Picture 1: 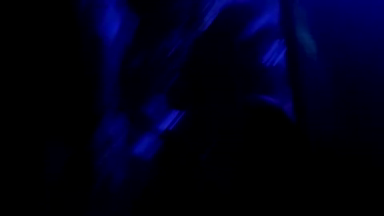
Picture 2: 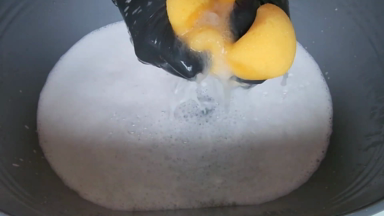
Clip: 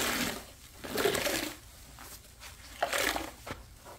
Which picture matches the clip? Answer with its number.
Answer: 2